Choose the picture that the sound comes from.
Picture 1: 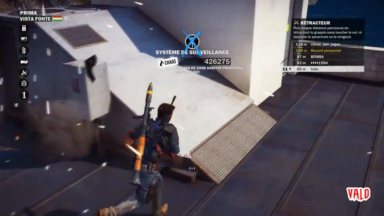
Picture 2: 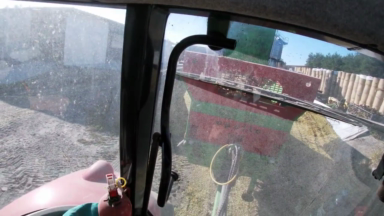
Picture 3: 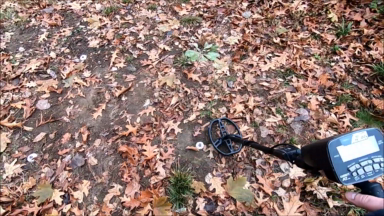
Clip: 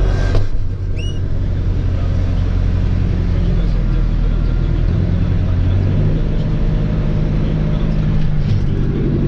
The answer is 2